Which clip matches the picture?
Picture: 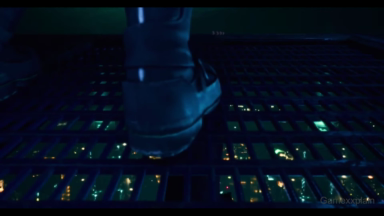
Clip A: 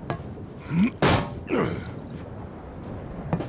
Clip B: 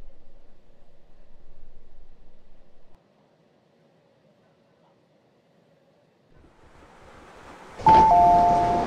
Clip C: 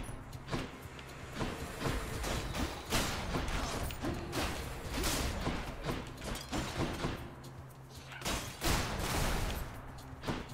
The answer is A